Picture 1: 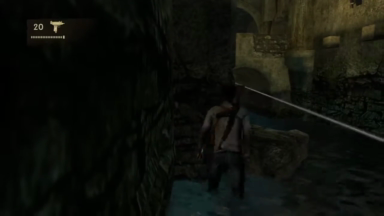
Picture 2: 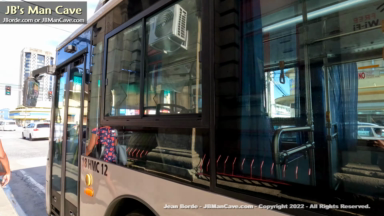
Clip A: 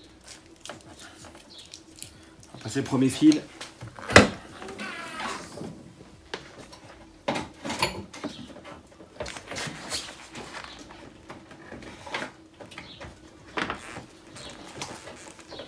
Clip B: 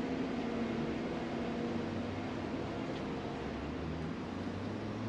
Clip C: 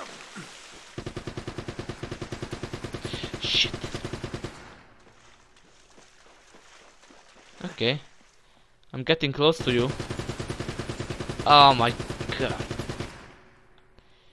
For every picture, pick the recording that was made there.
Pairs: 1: C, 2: B